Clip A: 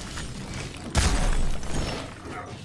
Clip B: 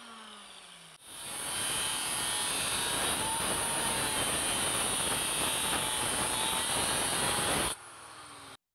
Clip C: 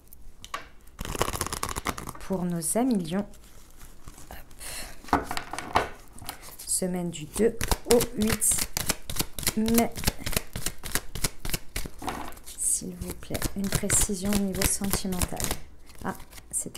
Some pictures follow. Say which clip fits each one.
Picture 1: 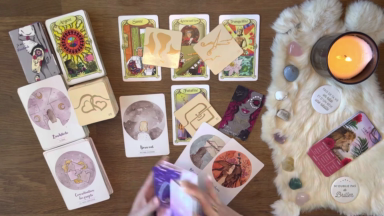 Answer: C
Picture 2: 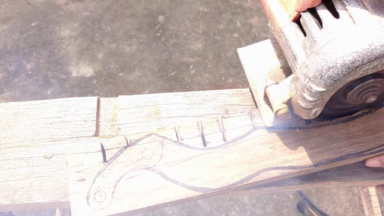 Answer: B